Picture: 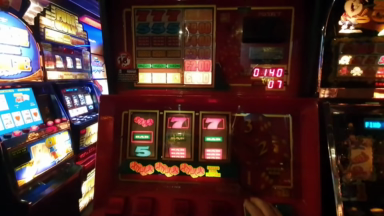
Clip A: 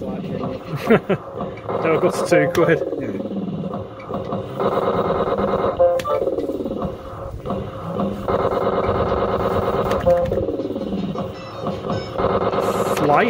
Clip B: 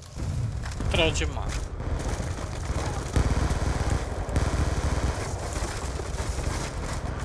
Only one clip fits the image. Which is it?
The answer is A